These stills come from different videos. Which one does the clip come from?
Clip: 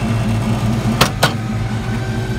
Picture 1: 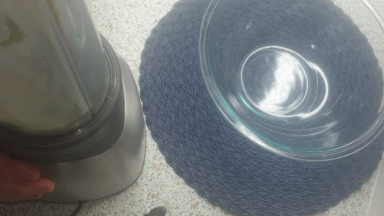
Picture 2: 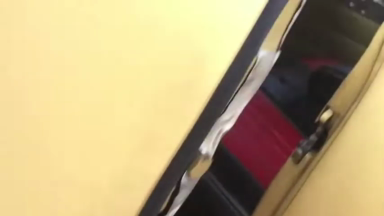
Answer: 2